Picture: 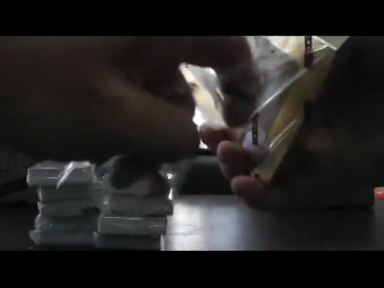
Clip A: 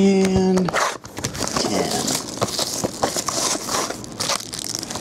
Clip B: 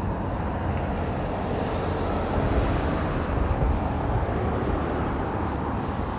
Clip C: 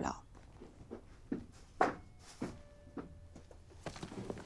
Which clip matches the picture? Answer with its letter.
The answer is A